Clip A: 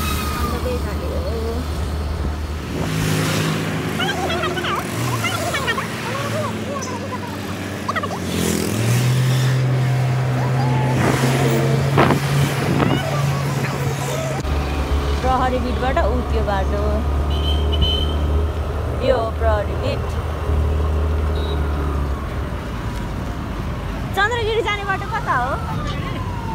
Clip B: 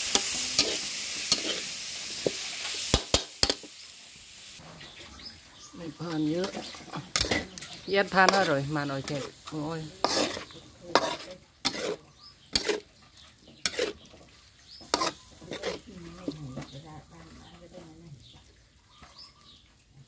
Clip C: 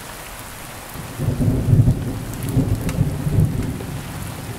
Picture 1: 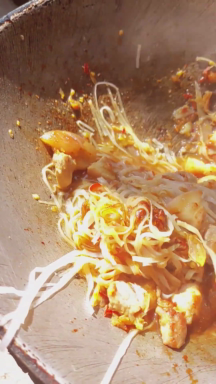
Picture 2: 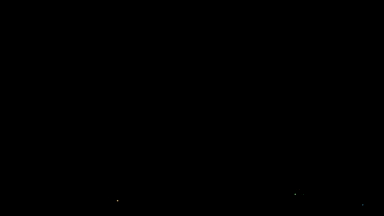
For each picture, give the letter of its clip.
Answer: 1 B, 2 C